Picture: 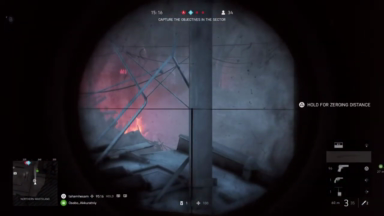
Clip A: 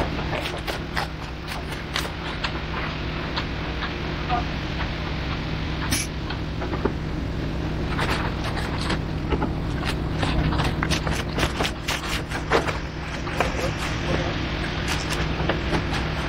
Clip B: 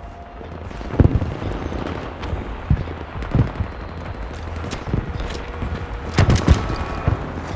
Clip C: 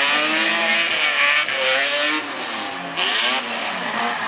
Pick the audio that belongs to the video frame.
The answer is B